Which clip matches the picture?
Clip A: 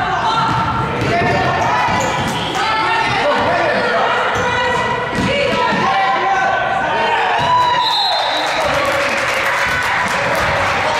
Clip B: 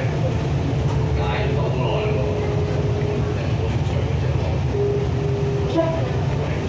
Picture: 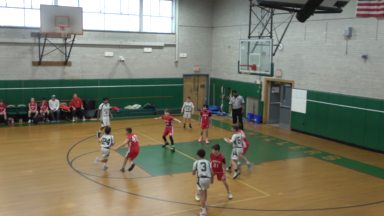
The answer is A